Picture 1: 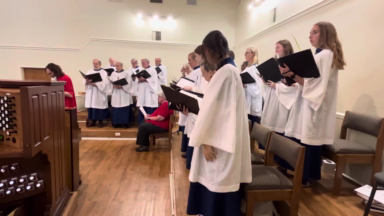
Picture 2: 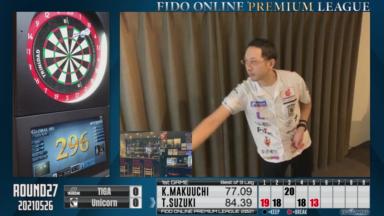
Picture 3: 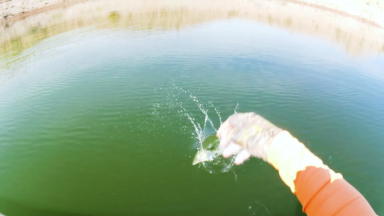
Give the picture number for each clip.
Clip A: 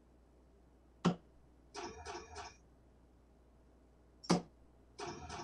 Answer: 2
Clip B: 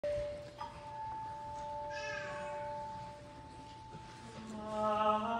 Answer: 1